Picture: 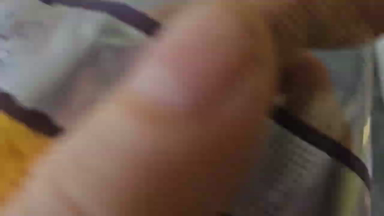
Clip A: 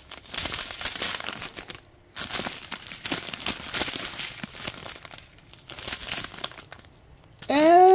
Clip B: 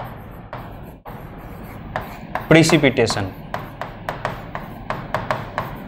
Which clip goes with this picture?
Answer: A